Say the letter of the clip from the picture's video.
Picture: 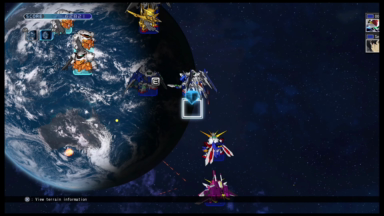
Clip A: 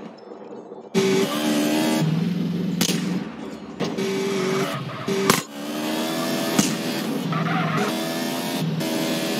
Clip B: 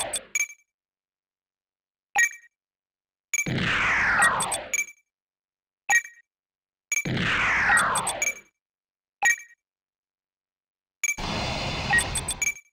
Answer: B